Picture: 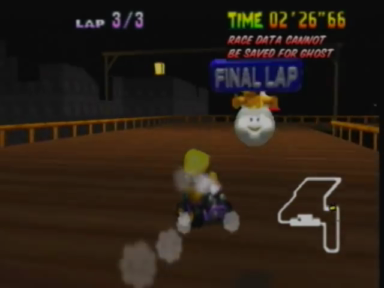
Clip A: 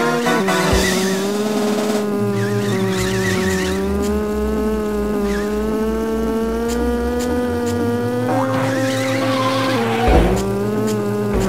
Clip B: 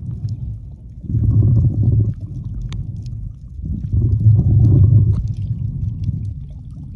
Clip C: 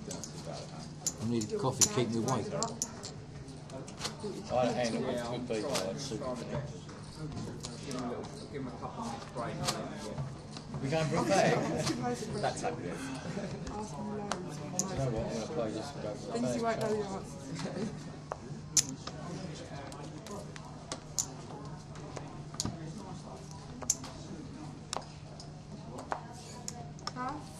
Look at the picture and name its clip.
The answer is A